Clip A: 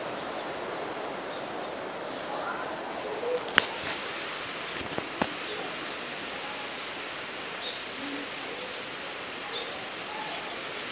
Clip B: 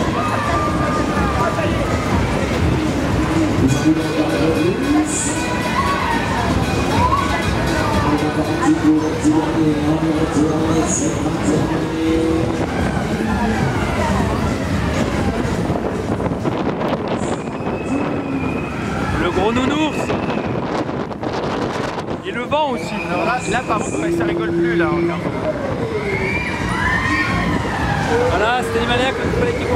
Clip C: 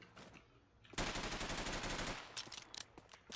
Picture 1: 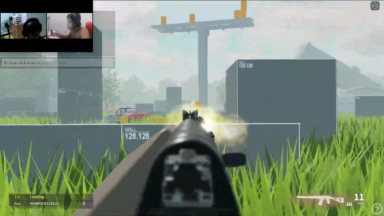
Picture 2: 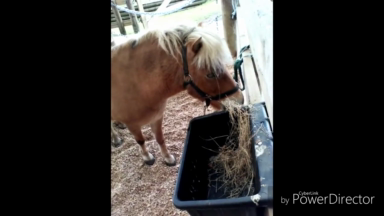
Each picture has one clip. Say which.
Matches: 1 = C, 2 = A